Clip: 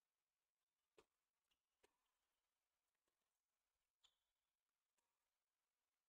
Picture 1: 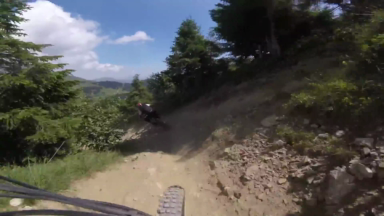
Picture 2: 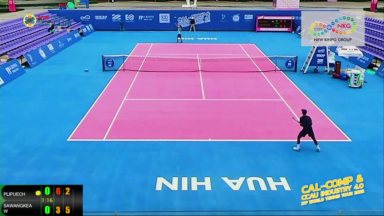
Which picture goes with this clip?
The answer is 2